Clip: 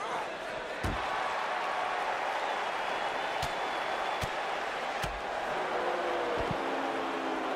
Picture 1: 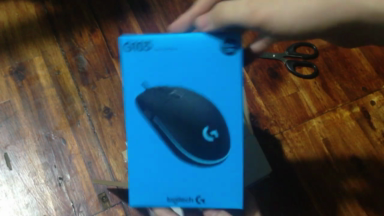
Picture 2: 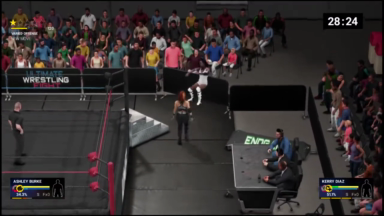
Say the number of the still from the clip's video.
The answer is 2